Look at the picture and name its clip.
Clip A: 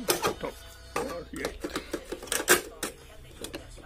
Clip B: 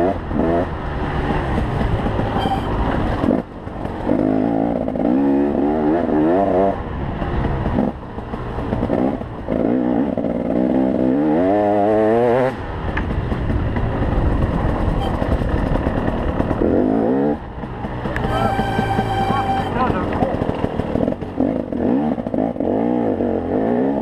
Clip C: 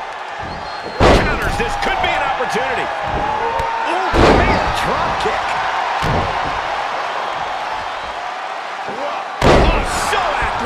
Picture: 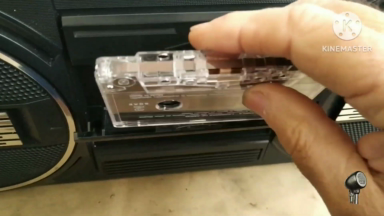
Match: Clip A